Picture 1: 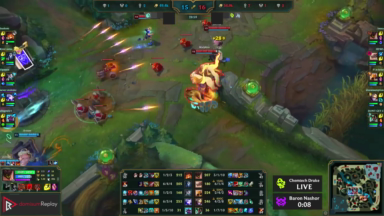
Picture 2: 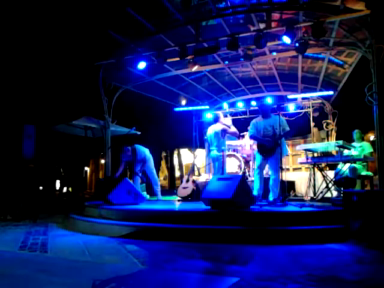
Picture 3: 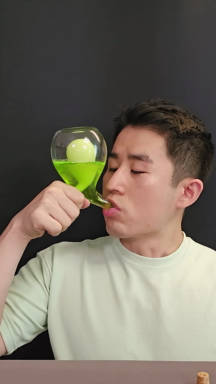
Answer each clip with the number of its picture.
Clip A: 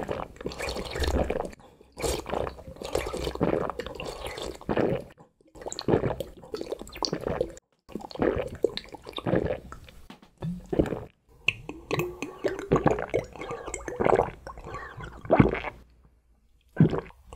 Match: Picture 3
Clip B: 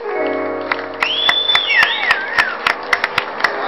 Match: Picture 2